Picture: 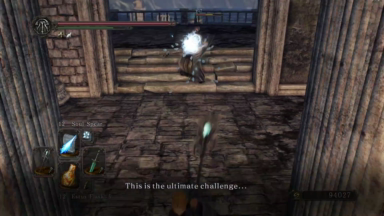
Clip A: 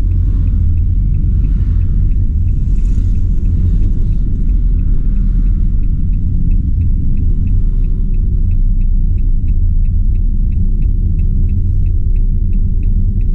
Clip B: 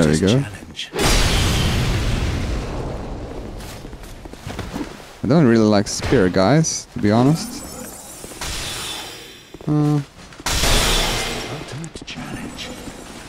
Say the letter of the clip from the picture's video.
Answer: B